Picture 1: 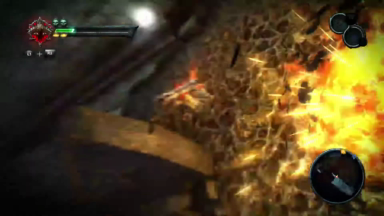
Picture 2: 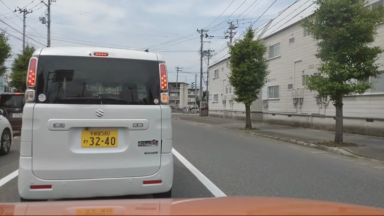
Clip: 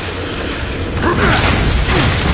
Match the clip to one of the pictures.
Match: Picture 1